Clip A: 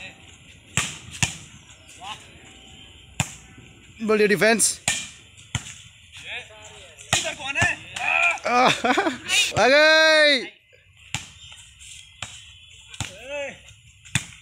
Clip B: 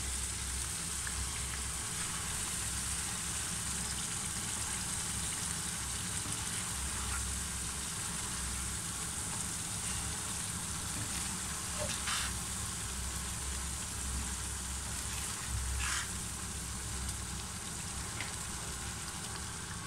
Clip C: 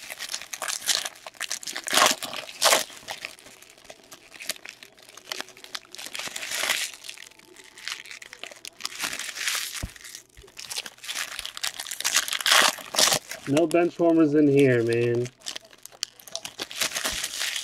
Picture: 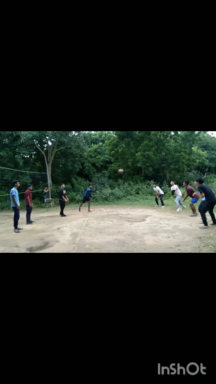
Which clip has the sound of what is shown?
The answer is A